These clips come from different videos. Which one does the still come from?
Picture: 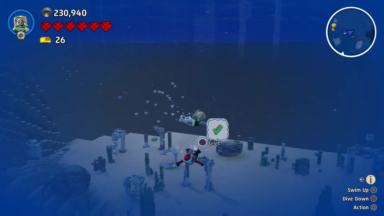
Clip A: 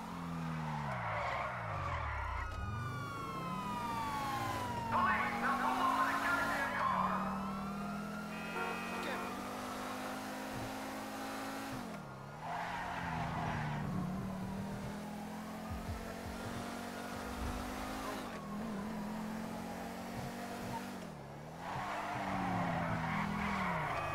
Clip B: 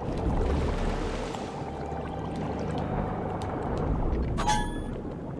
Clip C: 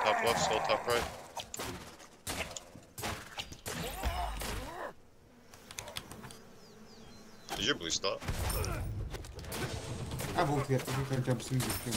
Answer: B